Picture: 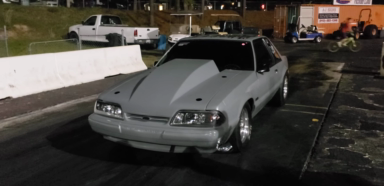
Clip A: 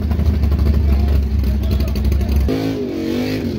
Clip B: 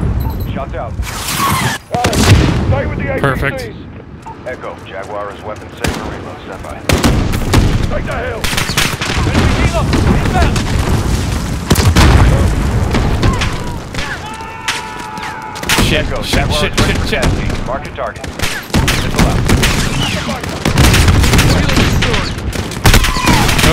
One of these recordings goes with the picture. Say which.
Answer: A